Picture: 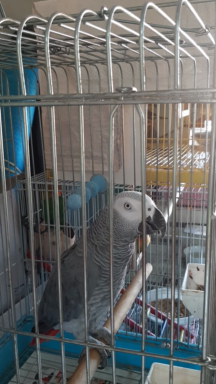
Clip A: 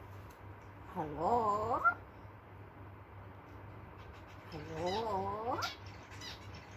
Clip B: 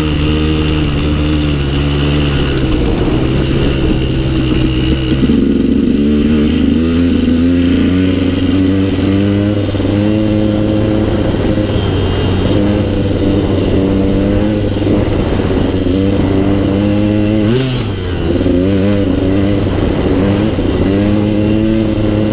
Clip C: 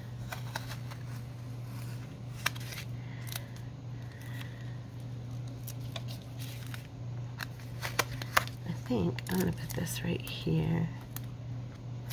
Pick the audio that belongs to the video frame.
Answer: A